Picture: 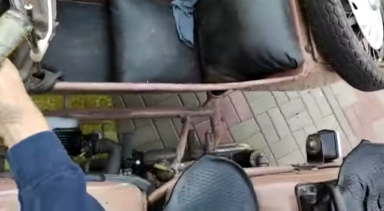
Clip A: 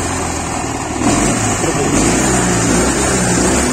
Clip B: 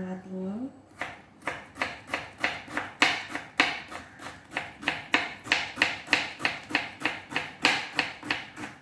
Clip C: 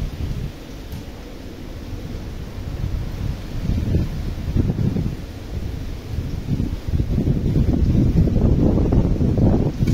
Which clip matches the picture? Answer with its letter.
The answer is A